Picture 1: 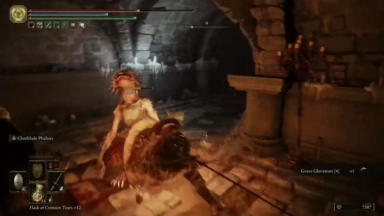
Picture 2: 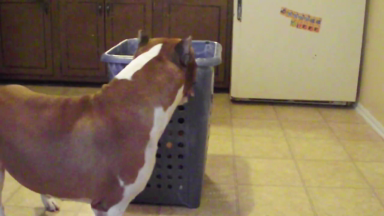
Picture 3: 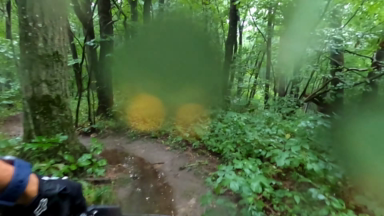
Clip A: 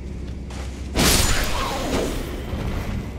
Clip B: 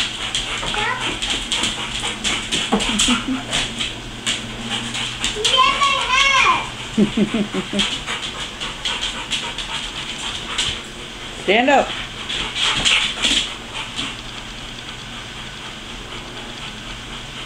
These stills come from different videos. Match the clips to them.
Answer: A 1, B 2